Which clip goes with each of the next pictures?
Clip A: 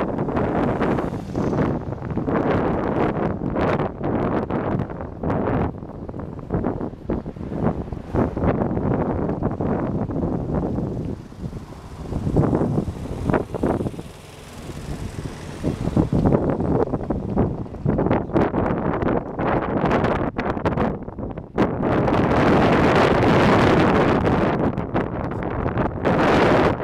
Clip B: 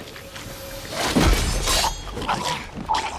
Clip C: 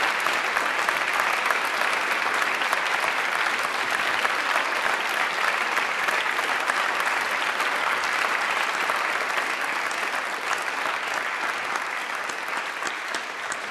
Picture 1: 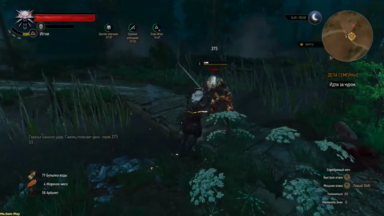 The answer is B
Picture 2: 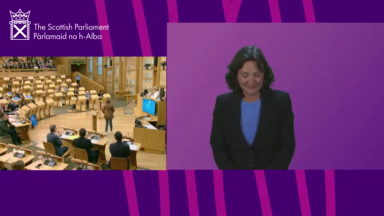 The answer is C